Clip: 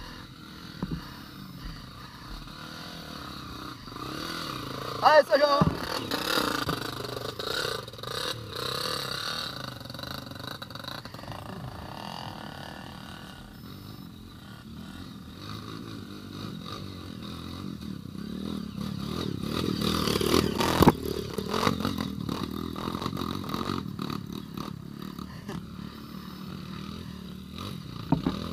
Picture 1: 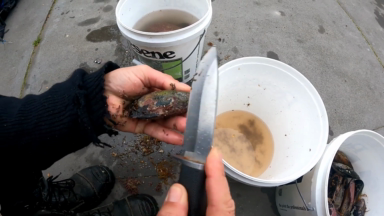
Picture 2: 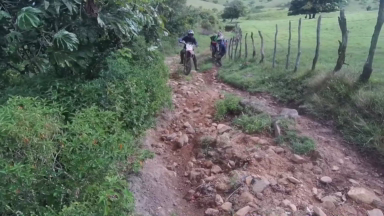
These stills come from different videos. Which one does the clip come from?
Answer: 2